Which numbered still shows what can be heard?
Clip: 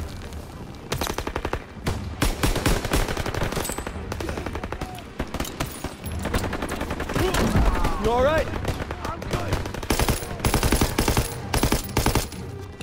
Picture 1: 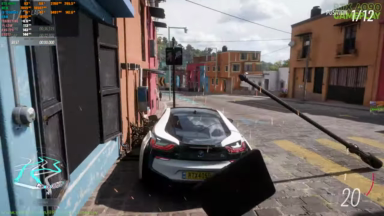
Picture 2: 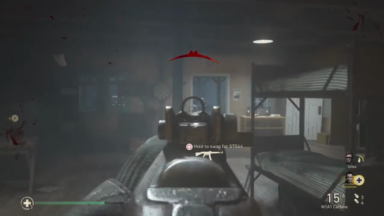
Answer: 2